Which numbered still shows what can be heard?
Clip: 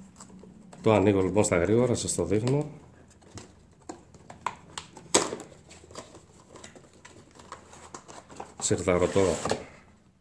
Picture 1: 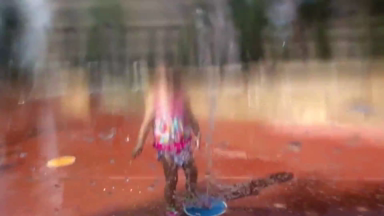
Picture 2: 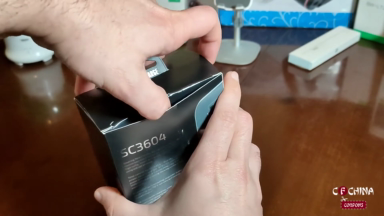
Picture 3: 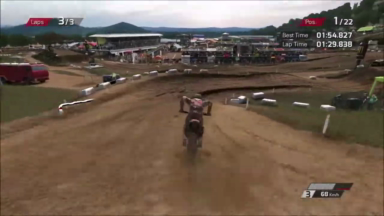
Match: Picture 2